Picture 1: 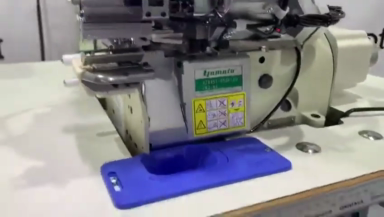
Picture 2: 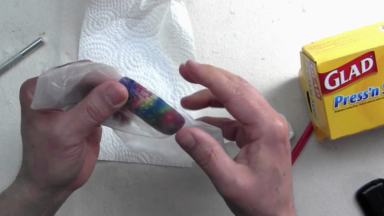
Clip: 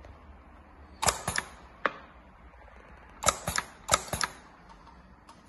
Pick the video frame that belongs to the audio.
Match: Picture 1